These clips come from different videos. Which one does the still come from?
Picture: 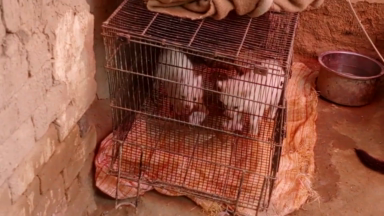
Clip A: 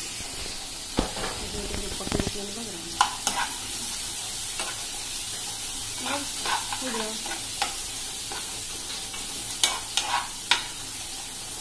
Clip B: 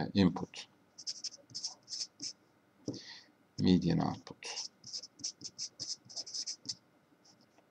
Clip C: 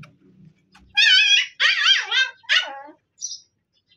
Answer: C